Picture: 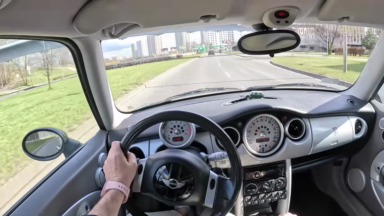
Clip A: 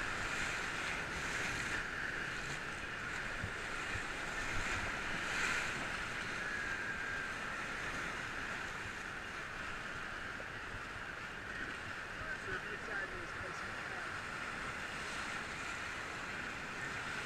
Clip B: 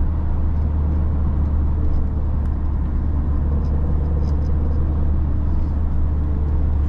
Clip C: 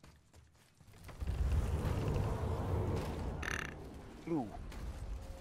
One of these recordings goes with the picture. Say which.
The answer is B